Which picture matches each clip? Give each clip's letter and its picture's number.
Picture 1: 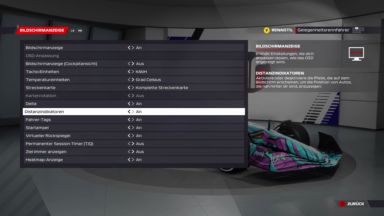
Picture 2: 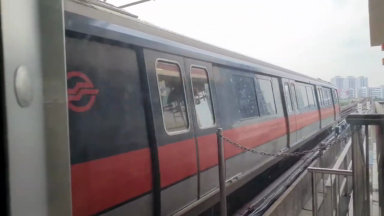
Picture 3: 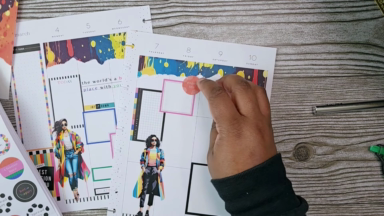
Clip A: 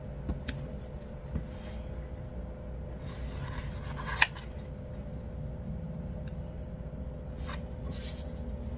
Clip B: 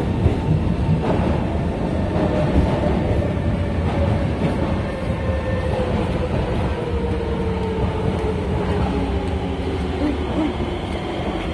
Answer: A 3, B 2